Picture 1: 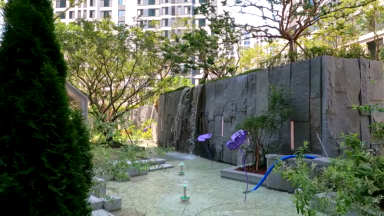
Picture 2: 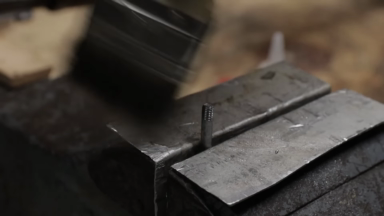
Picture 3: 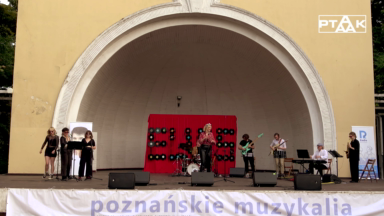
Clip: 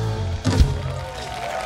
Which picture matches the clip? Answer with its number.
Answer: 3